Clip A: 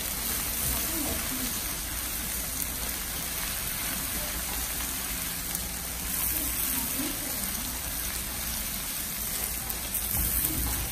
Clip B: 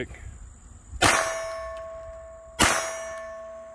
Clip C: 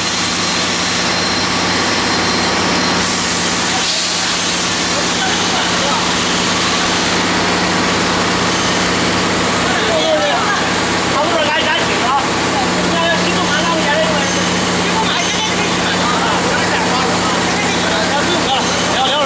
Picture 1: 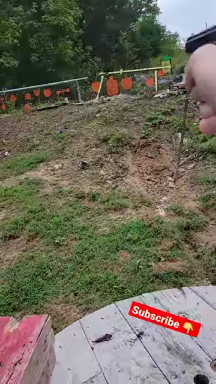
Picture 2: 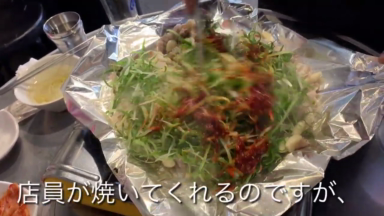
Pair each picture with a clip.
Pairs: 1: B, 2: A